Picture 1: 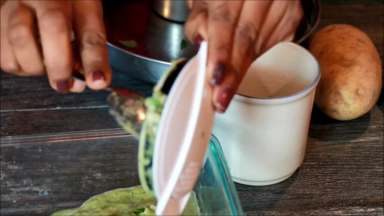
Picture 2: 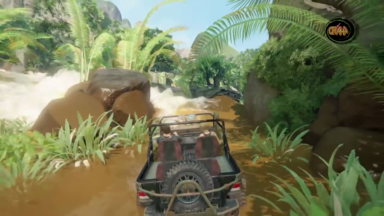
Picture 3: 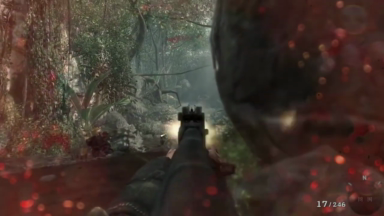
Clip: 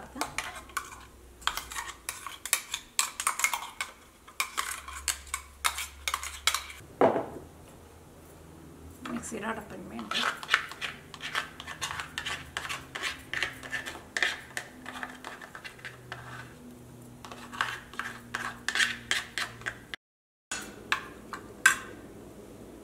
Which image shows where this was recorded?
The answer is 1